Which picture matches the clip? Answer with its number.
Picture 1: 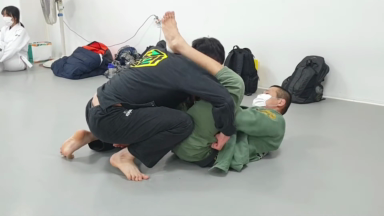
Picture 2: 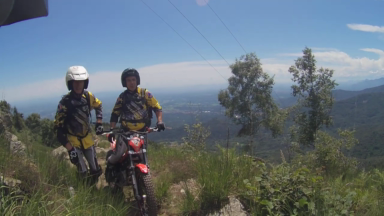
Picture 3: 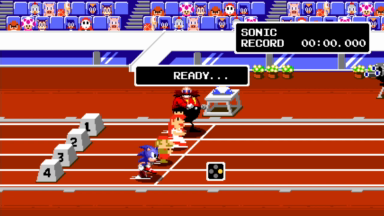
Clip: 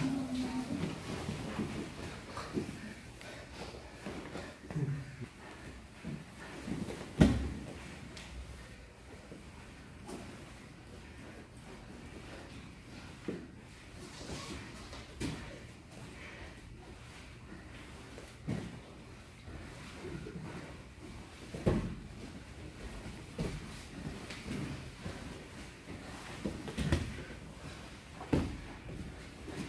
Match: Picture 1